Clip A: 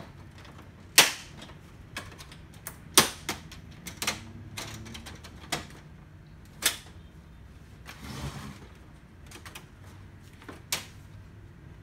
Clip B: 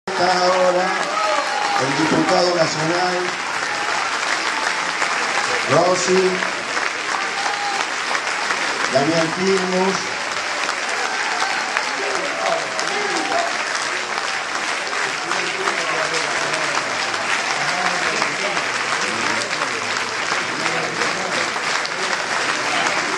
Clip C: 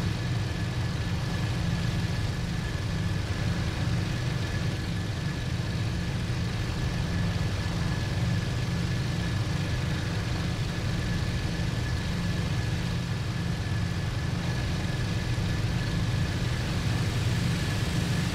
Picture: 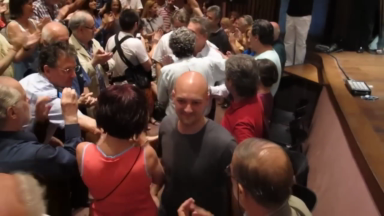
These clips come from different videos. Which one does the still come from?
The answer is B